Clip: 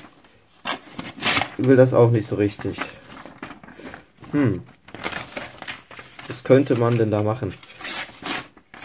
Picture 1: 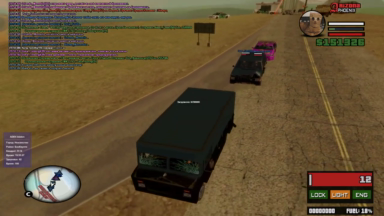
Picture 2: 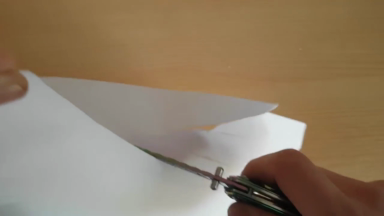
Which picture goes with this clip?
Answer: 2